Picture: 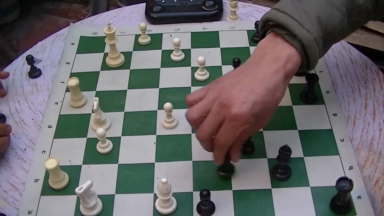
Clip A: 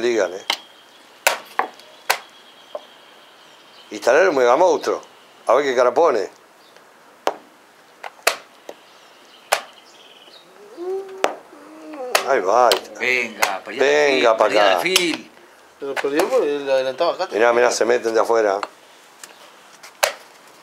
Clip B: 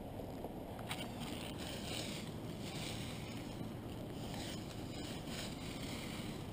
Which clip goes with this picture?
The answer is A